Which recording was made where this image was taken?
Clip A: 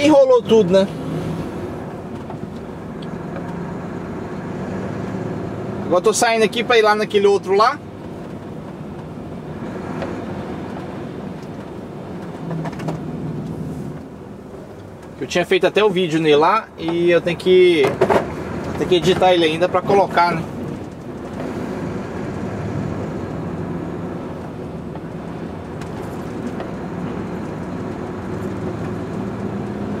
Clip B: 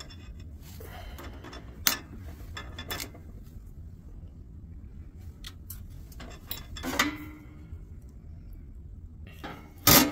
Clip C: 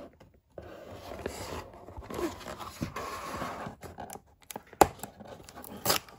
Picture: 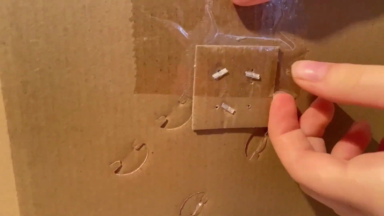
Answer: C